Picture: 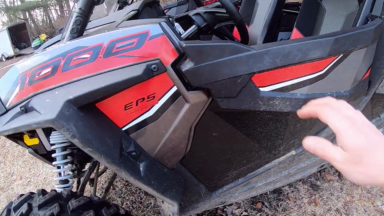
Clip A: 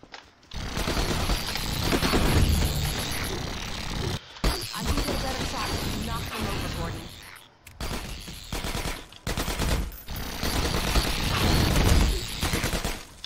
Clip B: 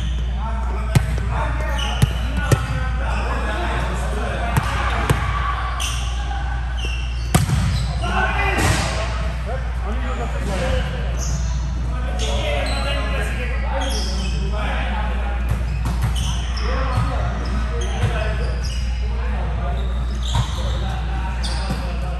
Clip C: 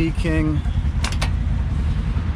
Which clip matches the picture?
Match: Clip C